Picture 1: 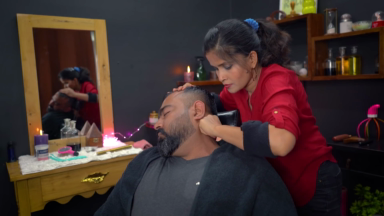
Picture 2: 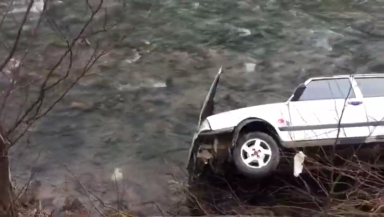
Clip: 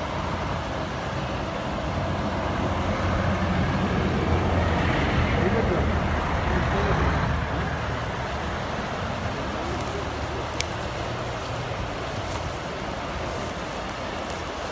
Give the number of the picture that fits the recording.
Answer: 2